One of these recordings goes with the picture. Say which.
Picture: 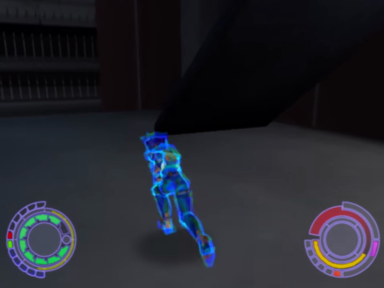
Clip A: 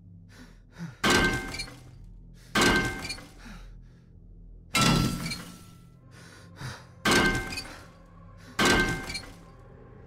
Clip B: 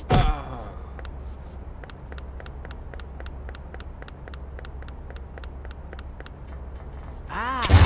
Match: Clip B